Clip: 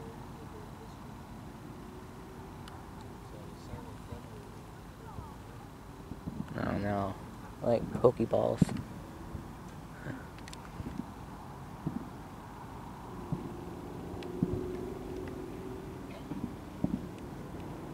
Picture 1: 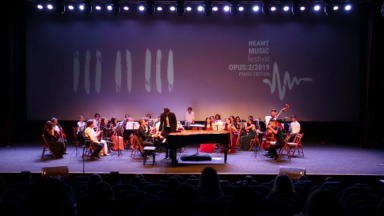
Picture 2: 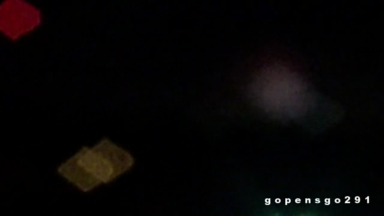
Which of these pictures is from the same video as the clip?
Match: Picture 2